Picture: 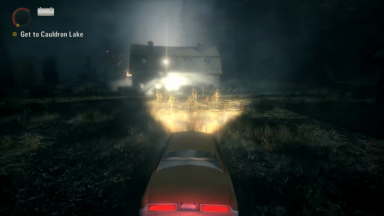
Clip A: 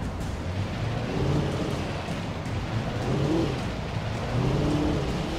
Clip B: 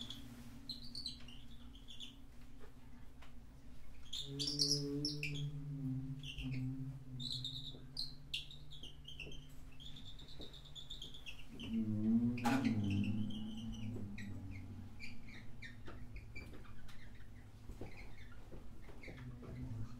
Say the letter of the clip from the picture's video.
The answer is A